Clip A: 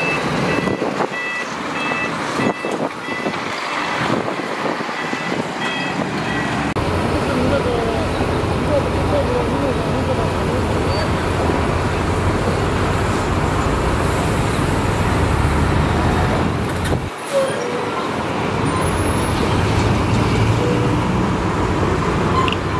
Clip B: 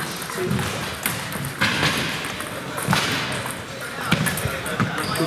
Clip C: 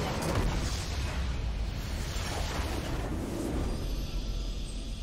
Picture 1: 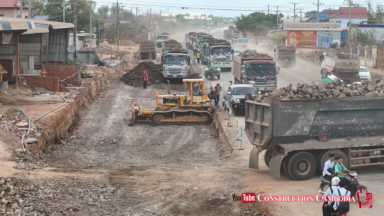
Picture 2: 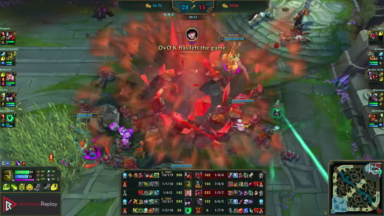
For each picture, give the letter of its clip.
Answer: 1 A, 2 C